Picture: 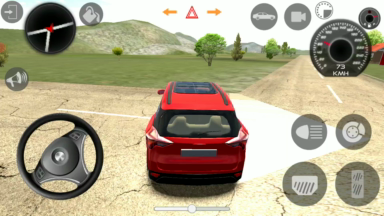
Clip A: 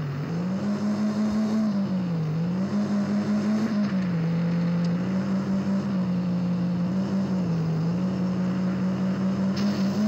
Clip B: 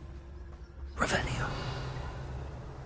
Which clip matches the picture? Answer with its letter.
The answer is A